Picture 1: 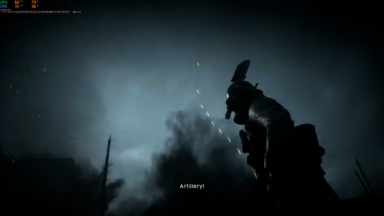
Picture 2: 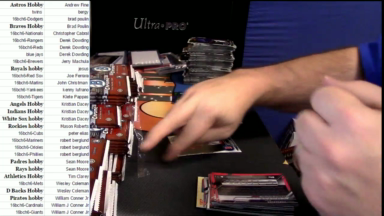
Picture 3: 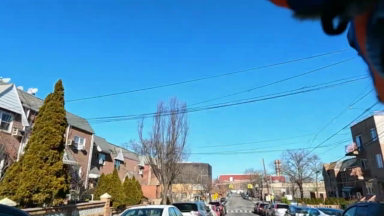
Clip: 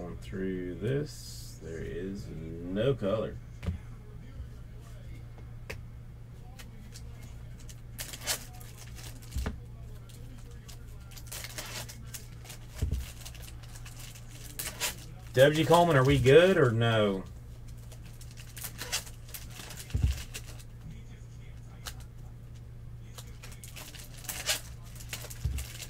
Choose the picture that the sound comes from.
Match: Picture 2